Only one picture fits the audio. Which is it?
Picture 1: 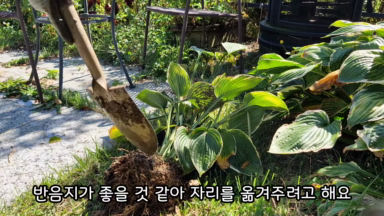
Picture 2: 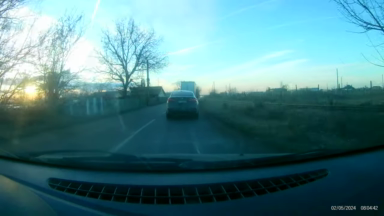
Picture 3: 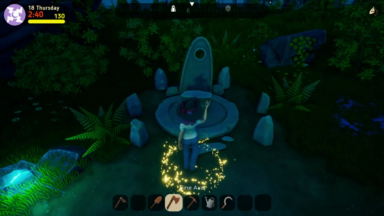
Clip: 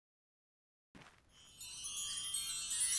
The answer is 3